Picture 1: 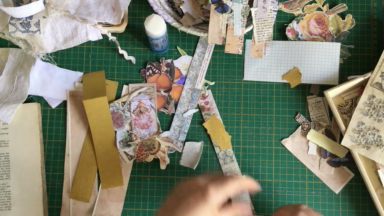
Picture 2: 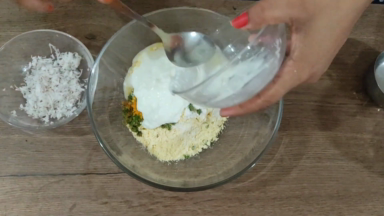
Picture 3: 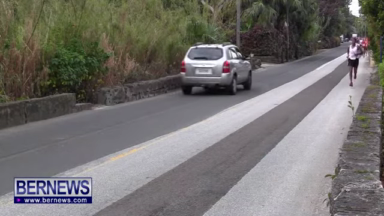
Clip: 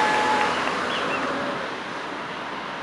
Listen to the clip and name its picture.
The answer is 3